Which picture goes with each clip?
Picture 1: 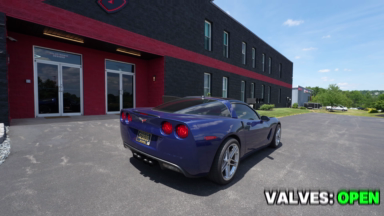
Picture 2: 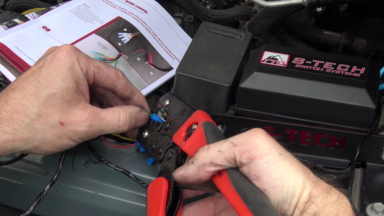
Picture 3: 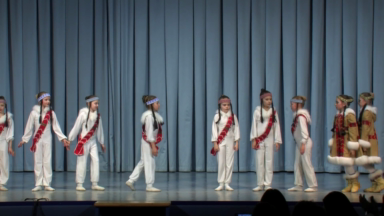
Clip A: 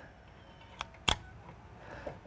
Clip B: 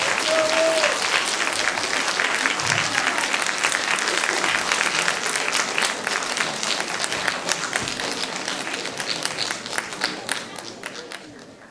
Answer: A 2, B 3